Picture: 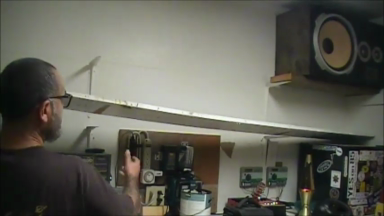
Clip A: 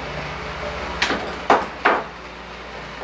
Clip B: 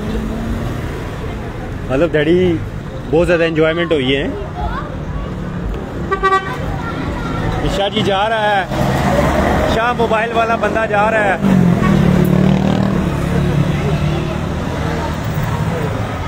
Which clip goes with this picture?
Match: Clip A